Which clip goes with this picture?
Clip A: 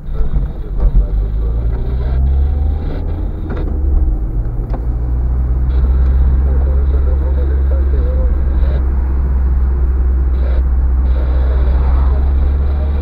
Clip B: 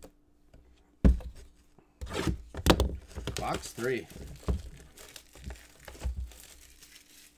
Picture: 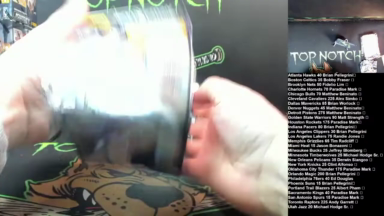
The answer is B